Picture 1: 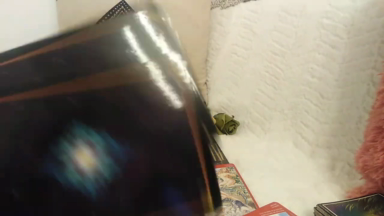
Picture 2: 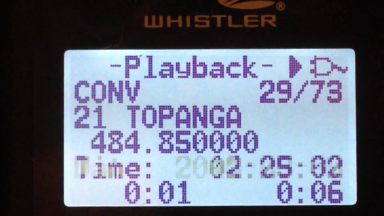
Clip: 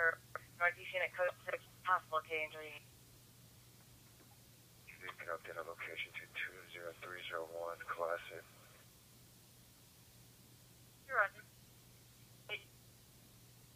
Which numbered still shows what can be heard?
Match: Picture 2